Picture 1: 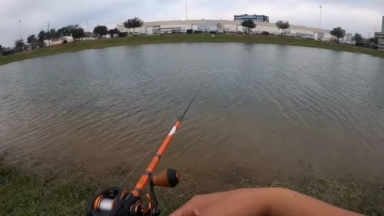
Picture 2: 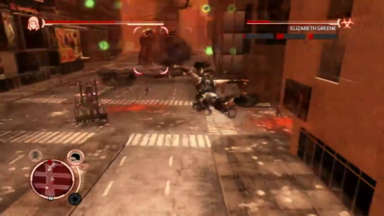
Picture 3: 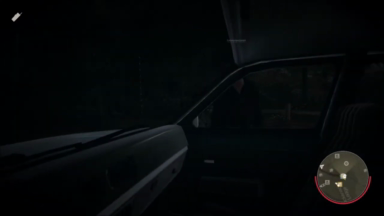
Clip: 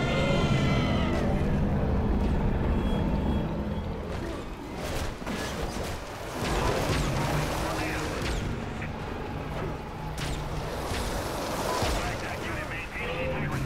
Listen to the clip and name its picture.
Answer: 2